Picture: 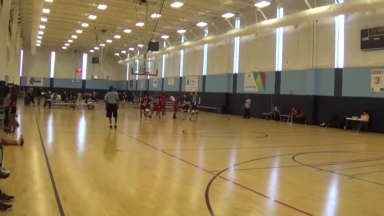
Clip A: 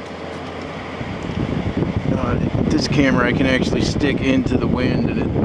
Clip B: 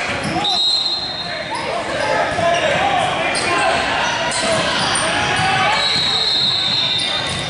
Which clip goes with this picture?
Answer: B